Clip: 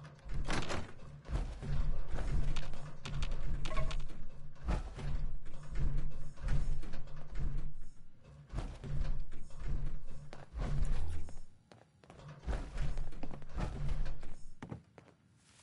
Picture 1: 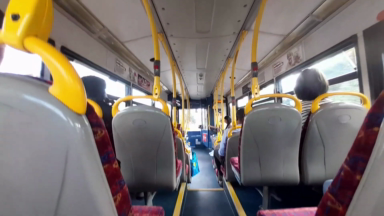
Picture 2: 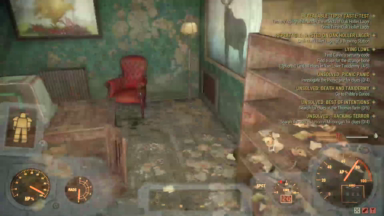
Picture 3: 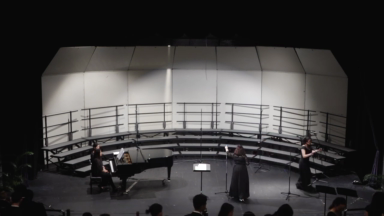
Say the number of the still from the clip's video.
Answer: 2